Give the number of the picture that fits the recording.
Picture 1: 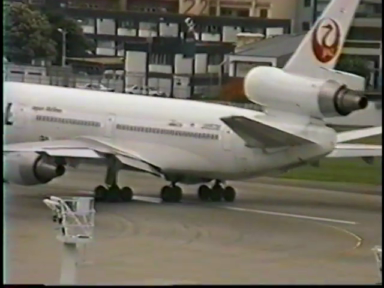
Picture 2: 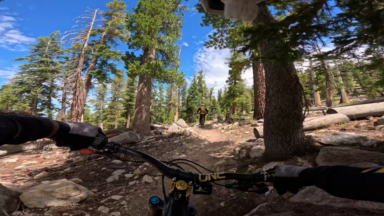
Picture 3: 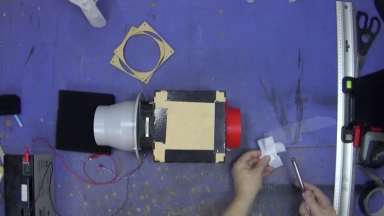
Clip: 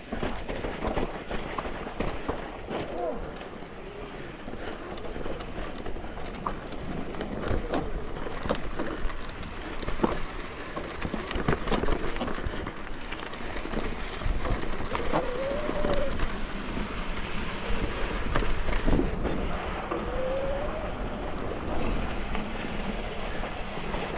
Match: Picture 2